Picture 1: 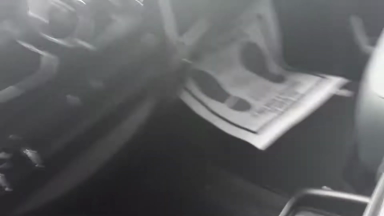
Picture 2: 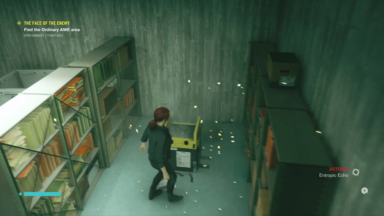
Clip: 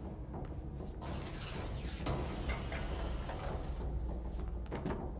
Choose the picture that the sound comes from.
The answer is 2